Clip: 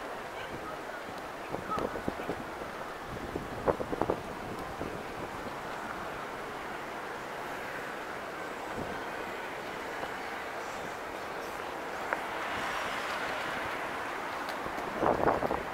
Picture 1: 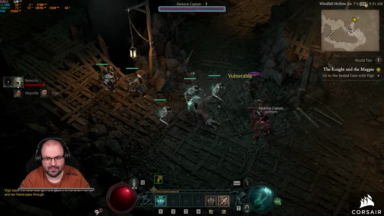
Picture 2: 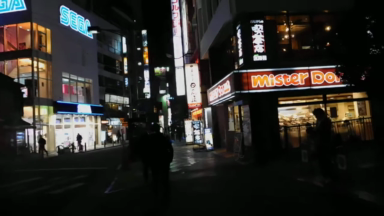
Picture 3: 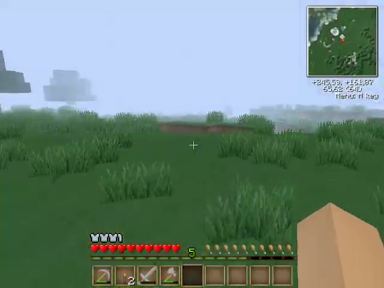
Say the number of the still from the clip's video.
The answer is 2